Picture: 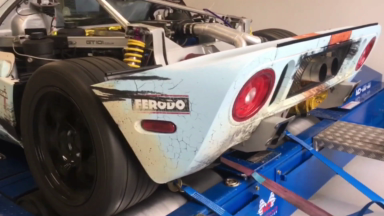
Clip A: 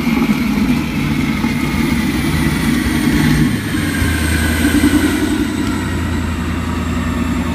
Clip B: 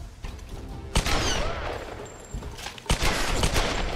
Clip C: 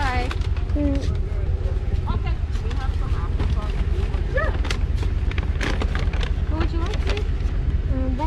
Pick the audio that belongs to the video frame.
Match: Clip A